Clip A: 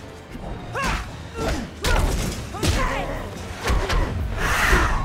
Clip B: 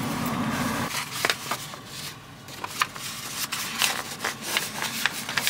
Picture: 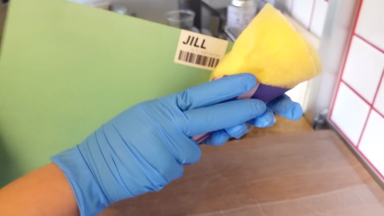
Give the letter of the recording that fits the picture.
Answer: B